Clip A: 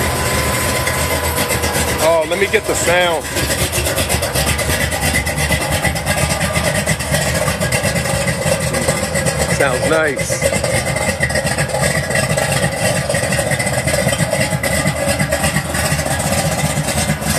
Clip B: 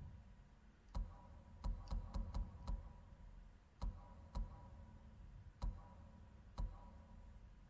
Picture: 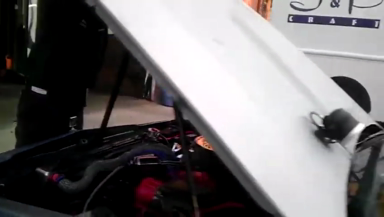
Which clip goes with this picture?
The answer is A